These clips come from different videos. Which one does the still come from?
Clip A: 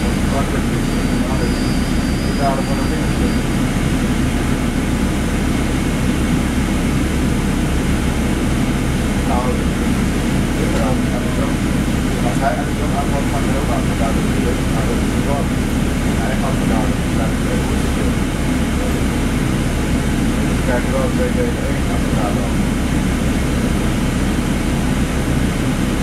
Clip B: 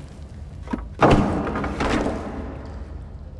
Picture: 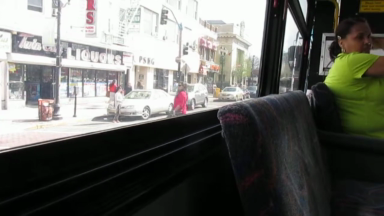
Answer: A